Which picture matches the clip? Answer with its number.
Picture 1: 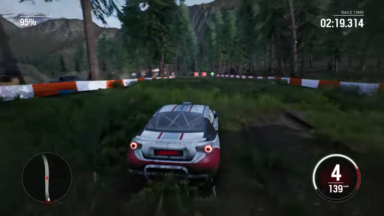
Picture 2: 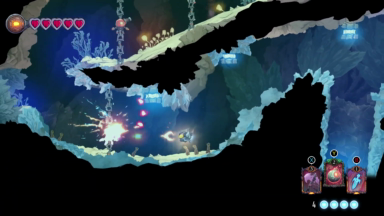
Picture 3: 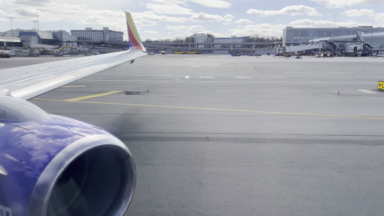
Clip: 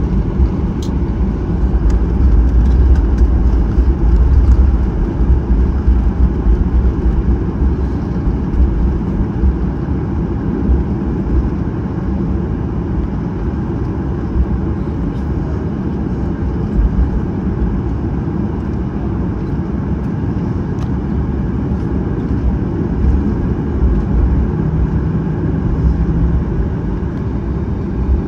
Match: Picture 3